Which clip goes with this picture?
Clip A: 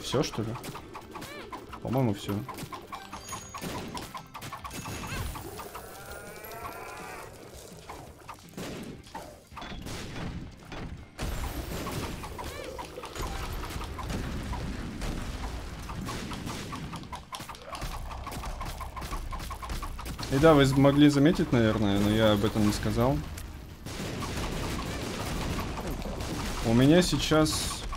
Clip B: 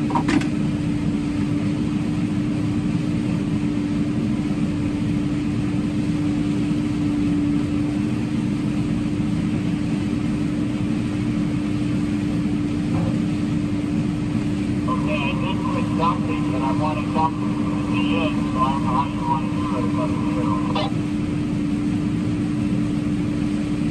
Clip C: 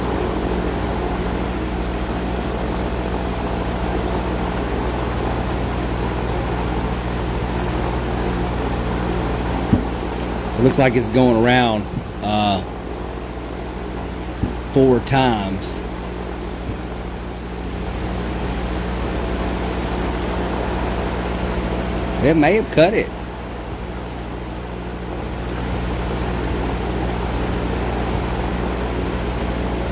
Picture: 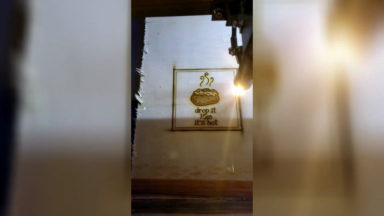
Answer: C